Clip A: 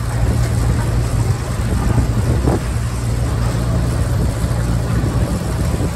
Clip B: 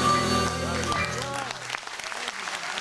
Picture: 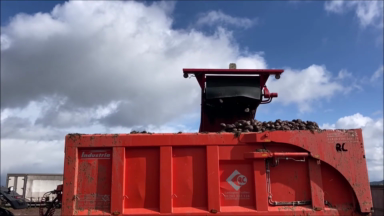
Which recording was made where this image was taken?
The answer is A